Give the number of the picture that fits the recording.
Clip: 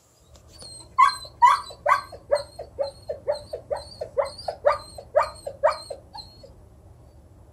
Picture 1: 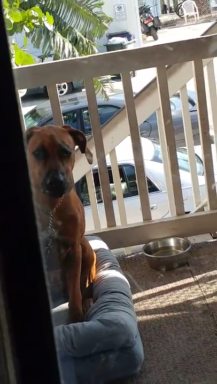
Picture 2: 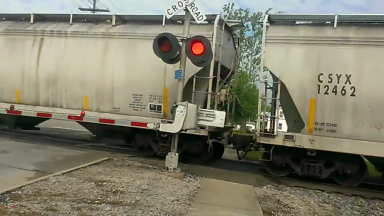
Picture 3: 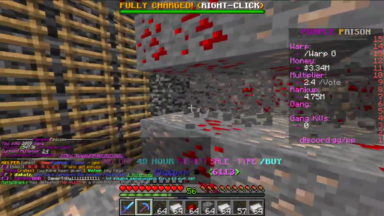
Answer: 1